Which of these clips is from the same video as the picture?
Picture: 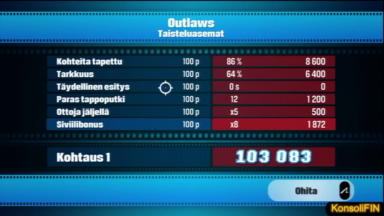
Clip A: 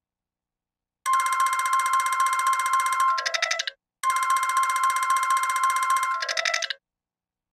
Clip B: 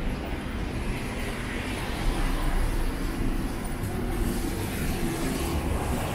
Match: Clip A